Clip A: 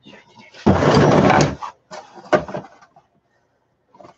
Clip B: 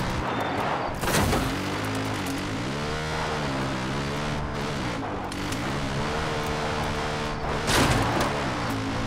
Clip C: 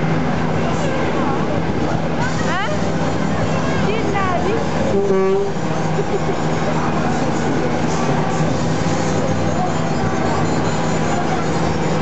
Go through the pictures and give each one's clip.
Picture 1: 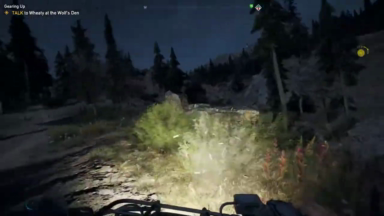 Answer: B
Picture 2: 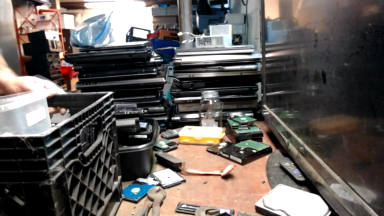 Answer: A